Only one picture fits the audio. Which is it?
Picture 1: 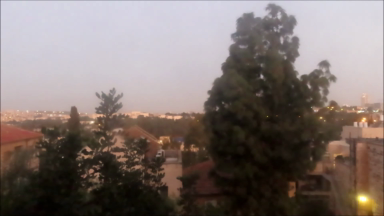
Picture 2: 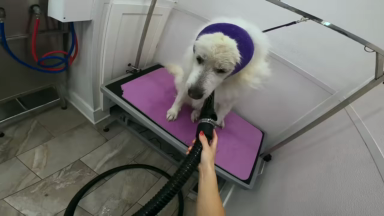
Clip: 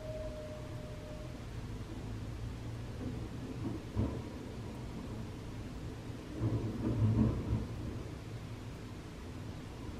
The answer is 1